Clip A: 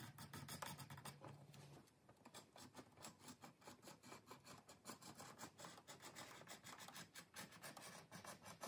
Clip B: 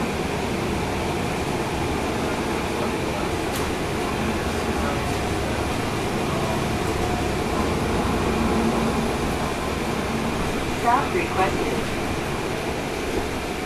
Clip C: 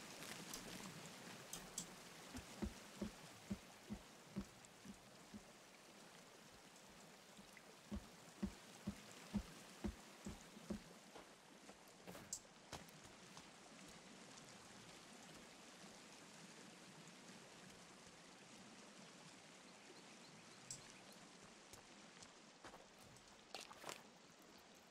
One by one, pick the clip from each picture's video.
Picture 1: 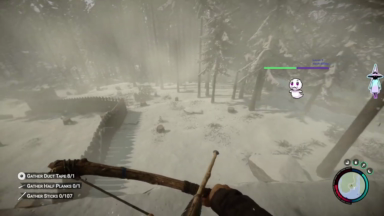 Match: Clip C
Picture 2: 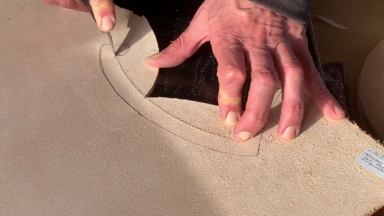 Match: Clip A